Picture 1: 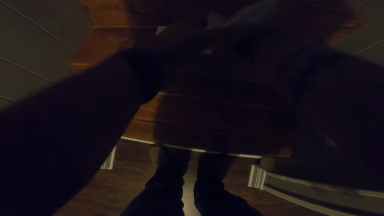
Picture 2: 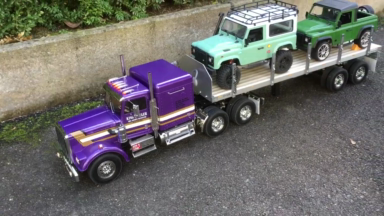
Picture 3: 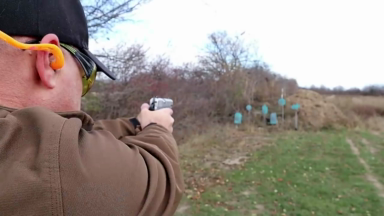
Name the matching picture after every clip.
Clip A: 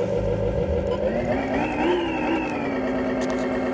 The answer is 2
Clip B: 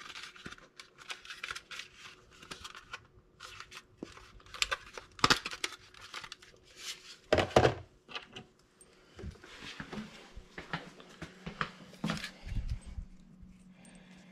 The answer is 1